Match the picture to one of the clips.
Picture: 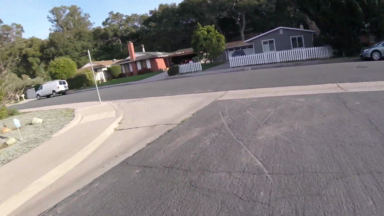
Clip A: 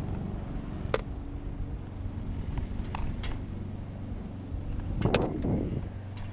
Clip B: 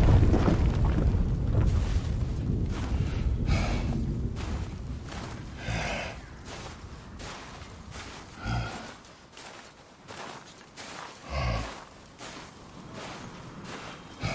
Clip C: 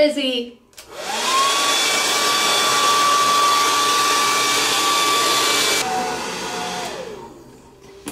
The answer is A